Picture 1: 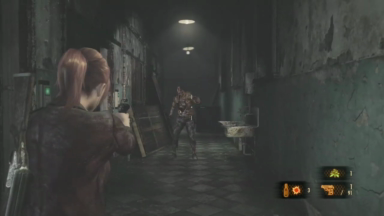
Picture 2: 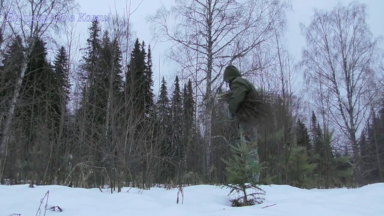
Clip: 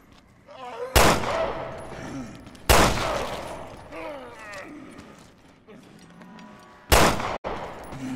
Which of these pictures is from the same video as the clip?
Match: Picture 1